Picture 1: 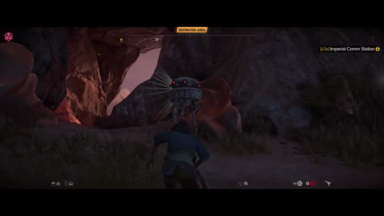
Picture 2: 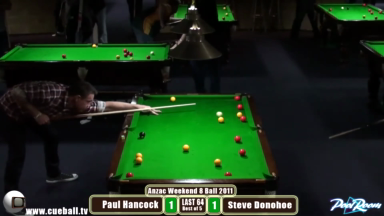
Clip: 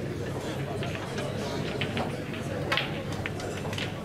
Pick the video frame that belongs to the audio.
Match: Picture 2